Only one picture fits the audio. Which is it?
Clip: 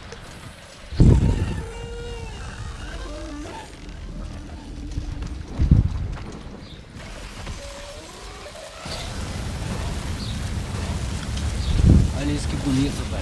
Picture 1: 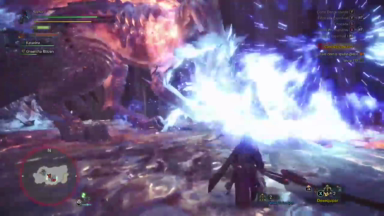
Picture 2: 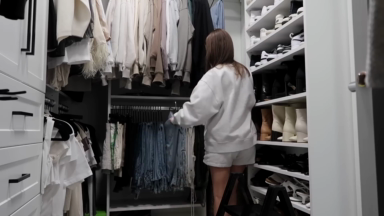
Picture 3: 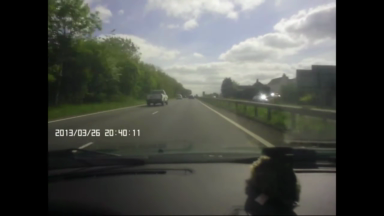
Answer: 1